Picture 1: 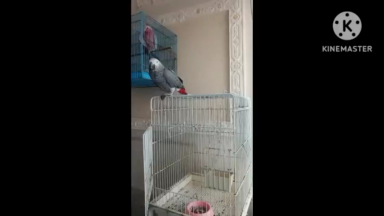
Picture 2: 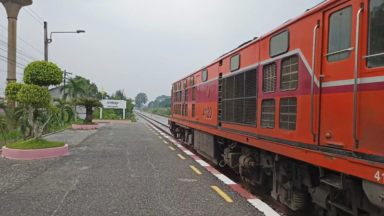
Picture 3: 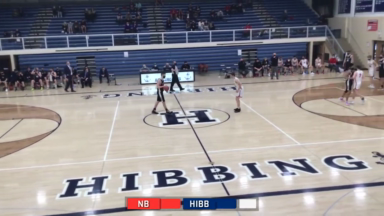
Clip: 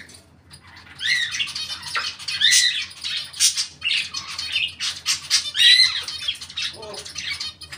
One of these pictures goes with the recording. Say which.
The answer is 1